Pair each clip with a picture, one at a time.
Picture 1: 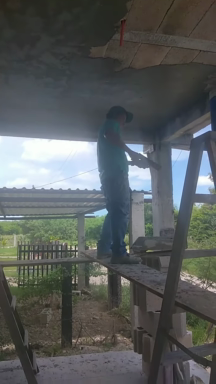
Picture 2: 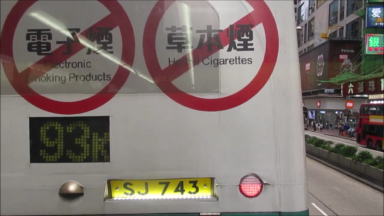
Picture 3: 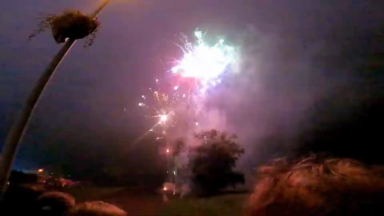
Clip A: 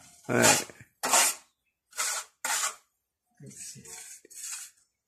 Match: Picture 1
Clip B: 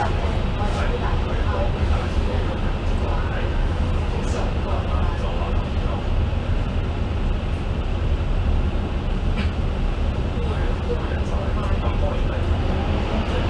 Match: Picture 2